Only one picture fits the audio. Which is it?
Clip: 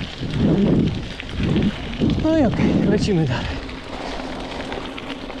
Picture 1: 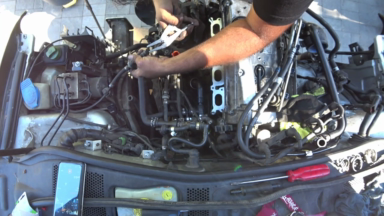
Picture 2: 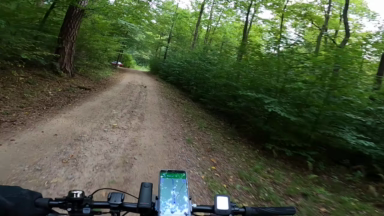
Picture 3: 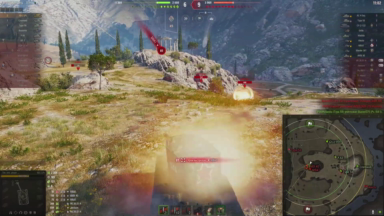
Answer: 2